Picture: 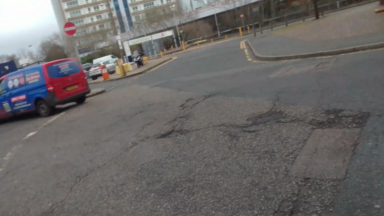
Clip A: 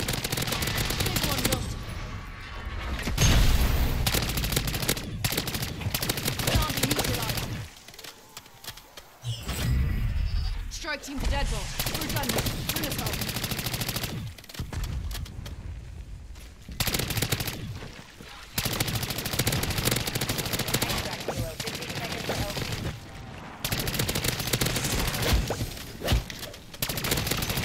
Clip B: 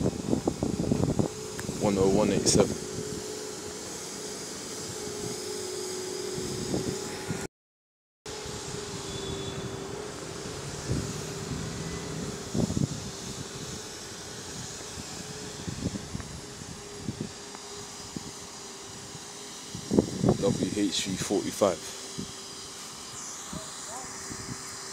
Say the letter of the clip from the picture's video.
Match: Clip B